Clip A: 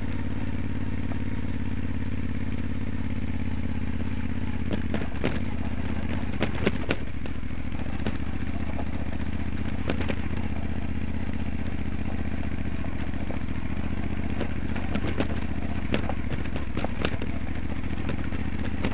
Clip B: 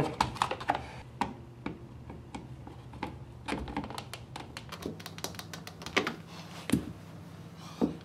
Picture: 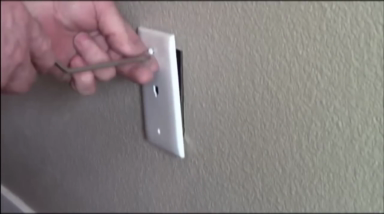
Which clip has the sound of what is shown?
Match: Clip B